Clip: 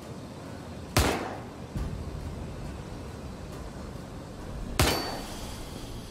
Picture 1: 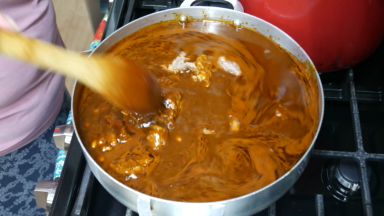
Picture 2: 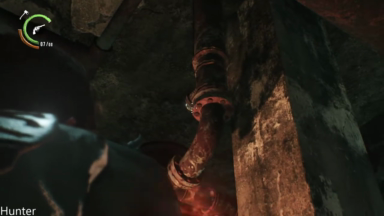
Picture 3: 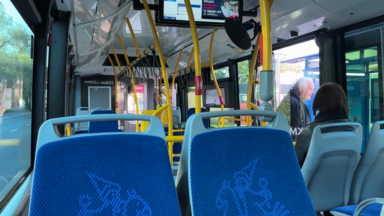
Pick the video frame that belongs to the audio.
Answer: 2